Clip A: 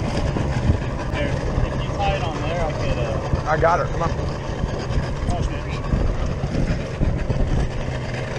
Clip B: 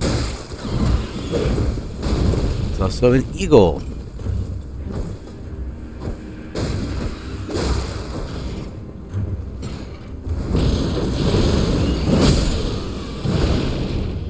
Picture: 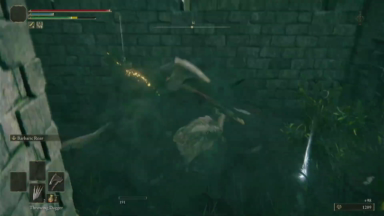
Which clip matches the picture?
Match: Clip B